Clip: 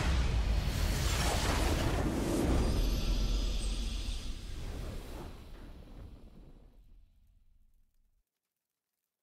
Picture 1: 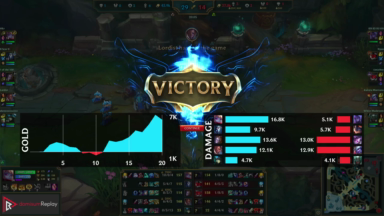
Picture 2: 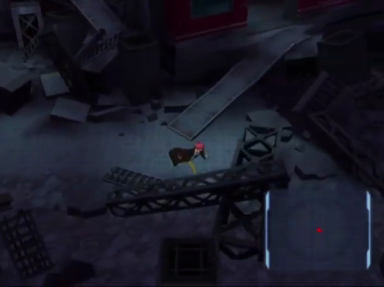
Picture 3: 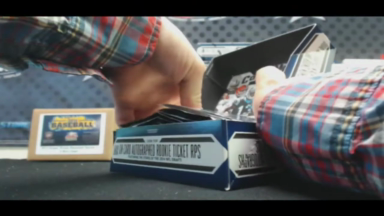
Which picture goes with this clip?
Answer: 1